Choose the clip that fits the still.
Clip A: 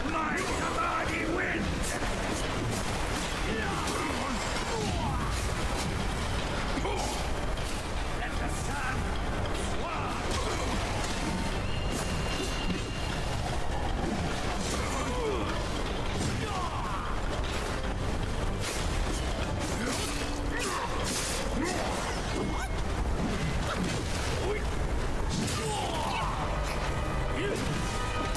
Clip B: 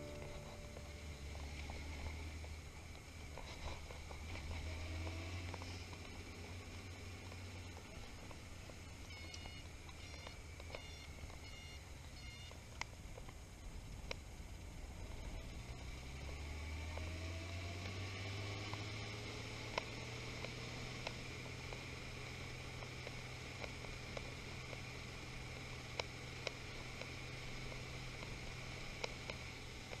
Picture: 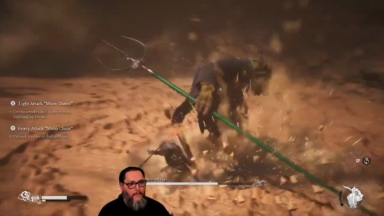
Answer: A